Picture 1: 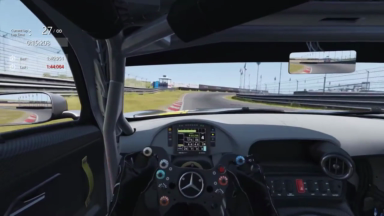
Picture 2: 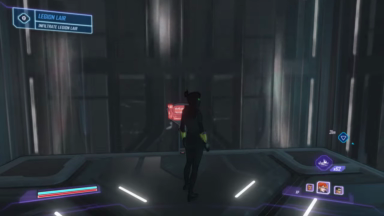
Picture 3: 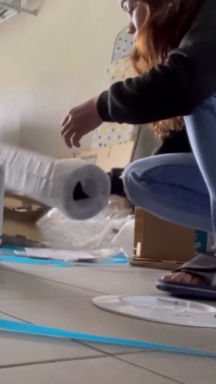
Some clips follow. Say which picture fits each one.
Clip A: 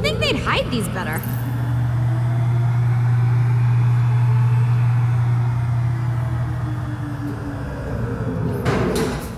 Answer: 2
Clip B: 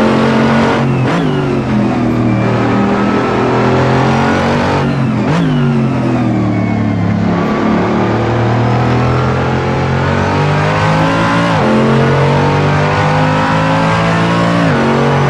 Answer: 1